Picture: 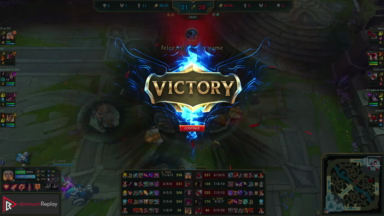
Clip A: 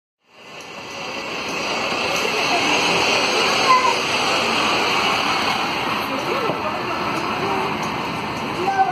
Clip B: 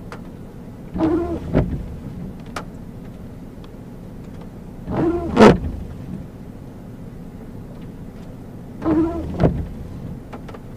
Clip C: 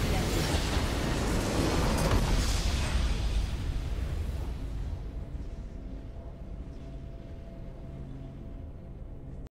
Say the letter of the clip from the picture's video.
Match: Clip C